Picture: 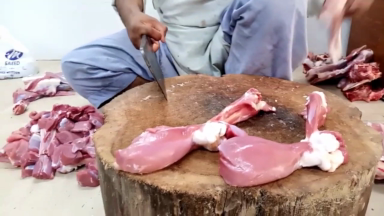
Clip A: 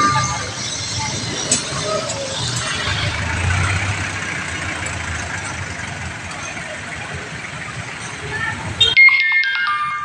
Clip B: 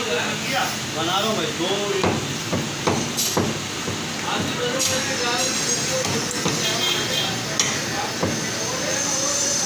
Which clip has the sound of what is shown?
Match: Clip B